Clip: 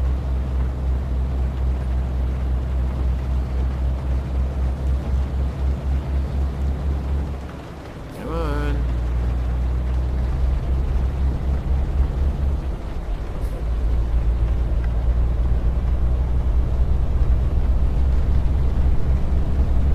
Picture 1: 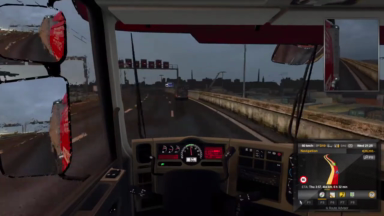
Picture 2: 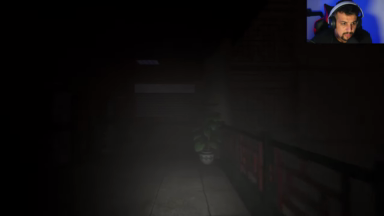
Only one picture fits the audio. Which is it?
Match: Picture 1